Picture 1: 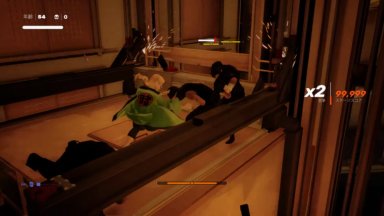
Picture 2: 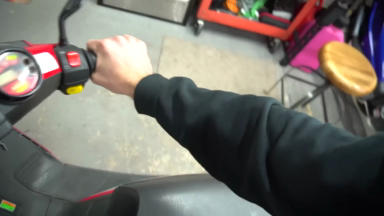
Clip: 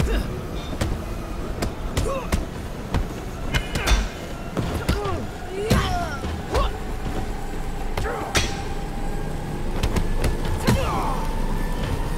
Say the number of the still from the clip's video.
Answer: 1